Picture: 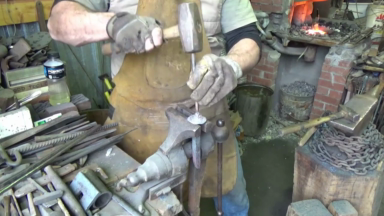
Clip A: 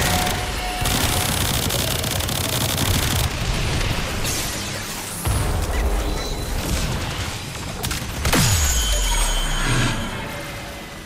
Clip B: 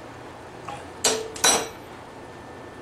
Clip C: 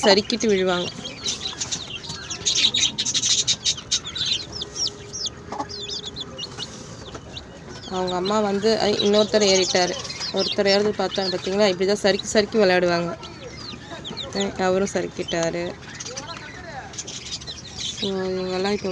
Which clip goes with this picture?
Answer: B